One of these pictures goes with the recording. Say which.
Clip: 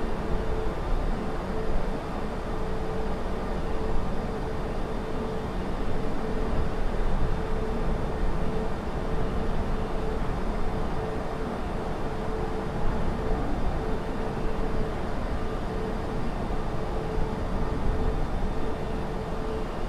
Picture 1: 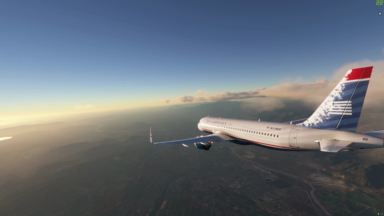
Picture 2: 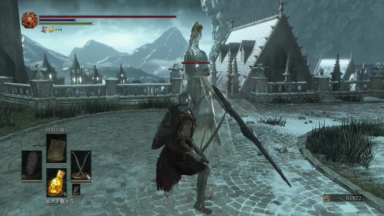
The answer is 1